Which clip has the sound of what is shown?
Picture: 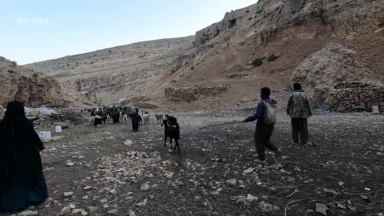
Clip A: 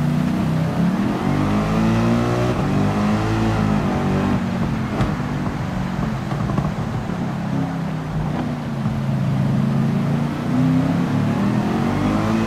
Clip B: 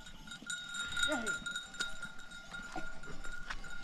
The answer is B